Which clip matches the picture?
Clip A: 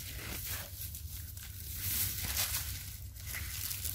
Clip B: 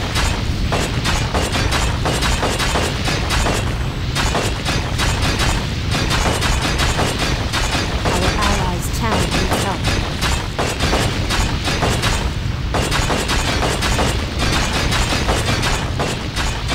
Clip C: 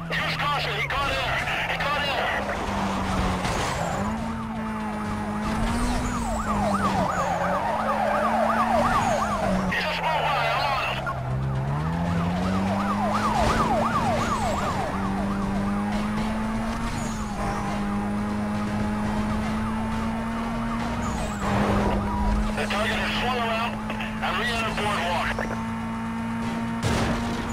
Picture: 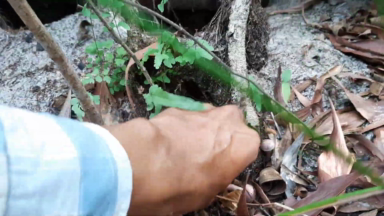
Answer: A